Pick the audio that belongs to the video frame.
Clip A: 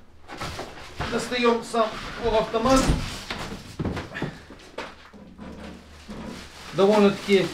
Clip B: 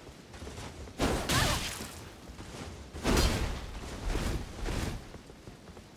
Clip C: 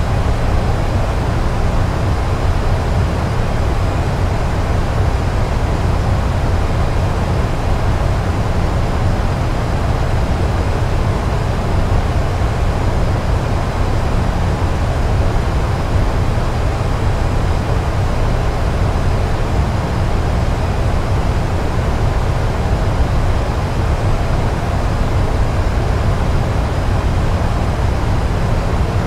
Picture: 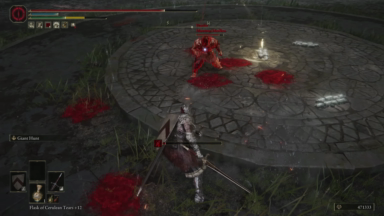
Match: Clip B